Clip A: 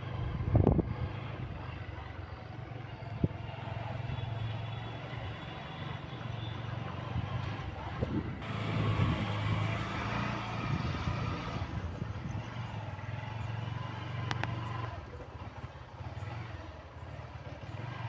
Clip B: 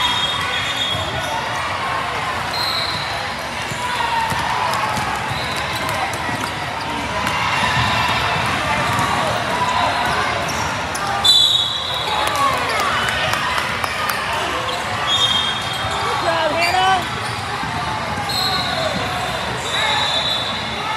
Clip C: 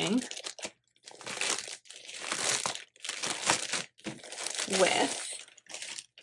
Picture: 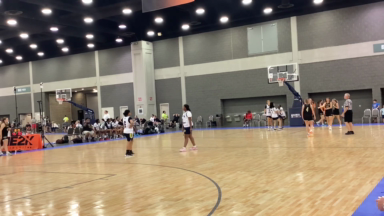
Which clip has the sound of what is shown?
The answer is B